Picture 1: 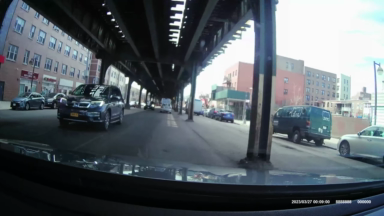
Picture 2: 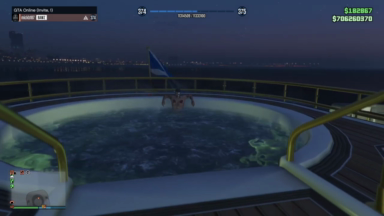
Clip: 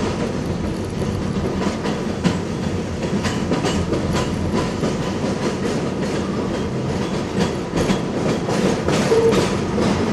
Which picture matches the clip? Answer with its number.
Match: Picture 1